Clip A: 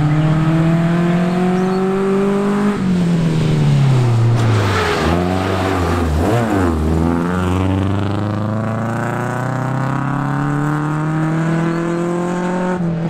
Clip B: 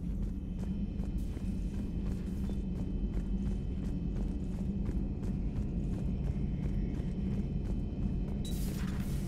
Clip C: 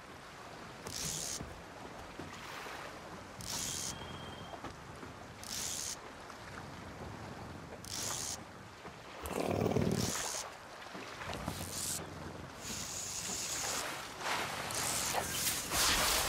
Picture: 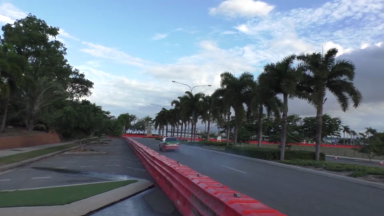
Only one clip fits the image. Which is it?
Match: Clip A